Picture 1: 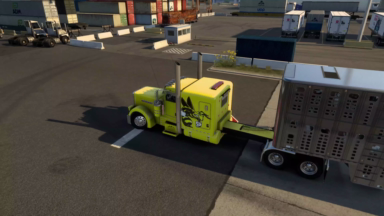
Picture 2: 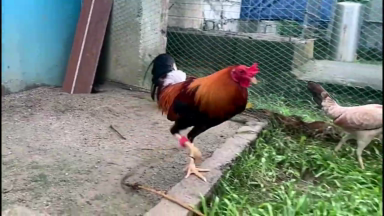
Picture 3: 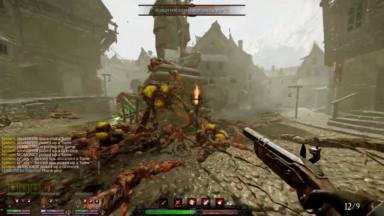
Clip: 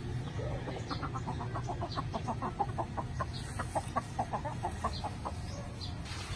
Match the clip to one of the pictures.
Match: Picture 2